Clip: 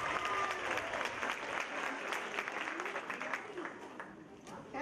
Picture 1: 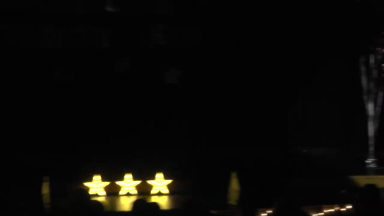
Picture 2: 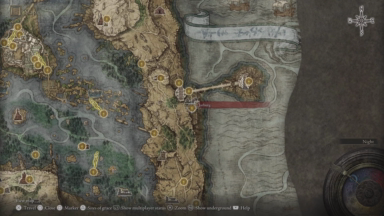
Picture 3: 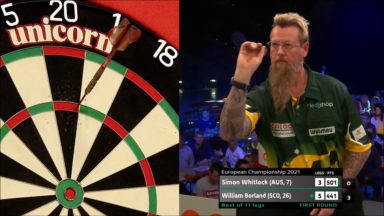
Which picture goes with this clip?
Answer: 1